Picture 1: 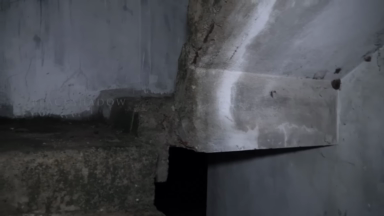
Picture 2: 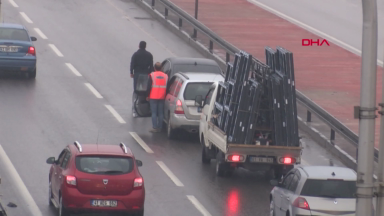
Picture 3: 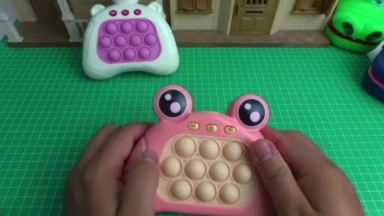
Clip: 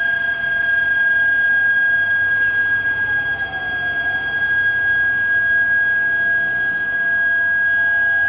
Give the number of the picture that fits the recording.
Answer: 2